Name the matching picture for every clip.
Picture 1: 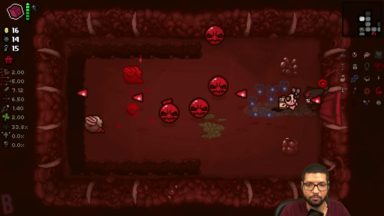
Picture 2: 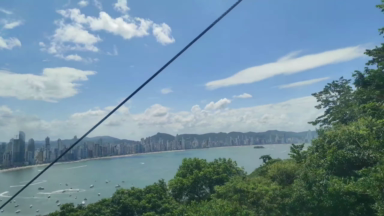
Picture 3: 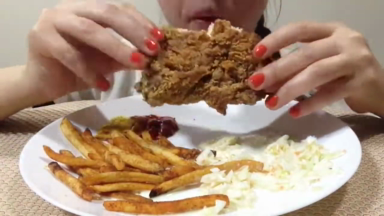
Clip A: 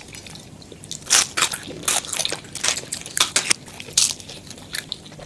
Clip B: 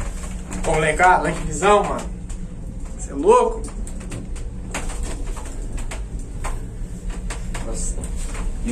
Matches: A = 3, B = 2